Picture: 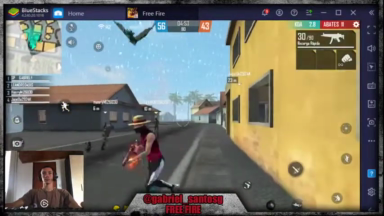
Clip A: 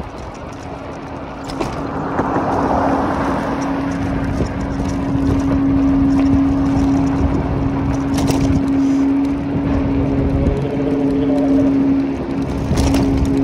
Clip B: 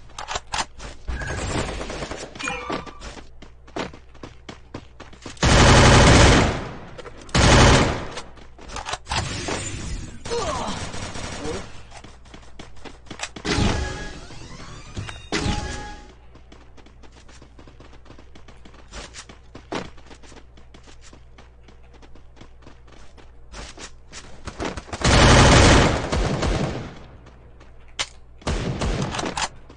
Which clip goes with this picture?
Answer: B